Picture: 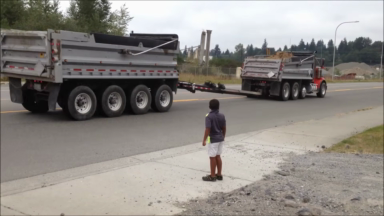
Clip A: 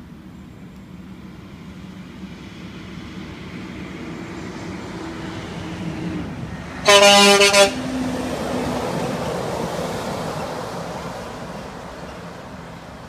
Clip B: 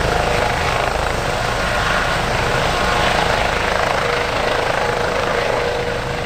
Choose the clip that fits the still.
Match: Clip A